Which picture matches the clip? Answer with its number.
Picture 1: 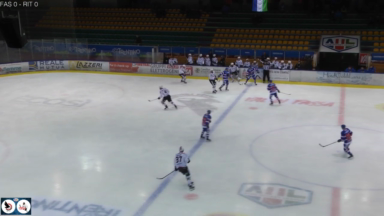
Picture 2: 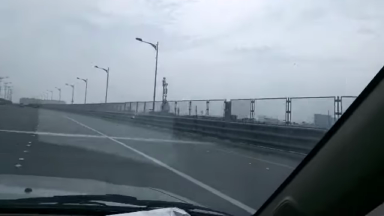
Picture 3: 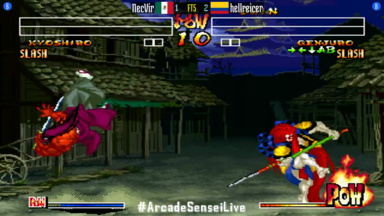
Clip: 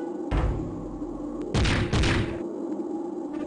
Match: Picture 3